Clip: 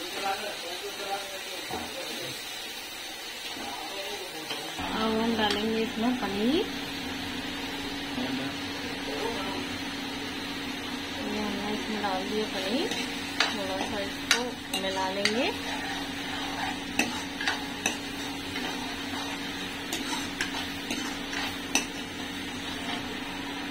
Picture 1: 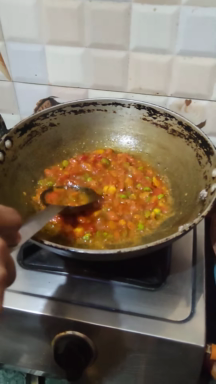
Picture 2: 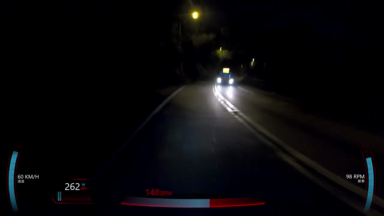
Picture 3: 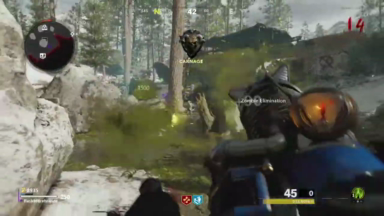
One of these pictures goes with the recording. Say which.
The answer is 1